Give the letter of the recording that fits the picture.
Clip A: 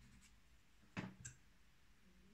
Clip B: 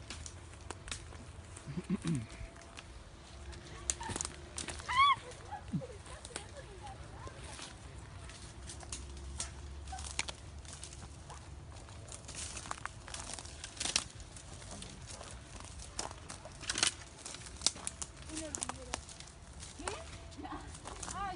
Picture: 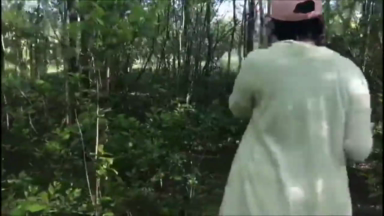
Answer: B